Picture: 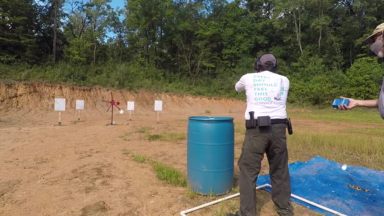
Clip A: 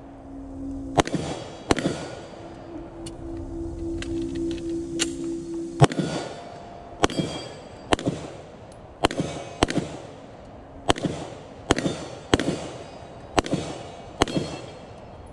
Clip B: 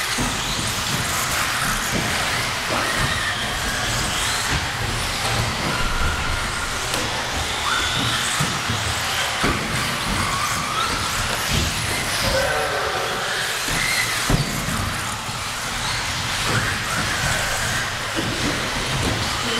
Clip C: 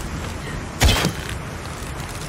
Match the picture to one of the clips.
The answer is A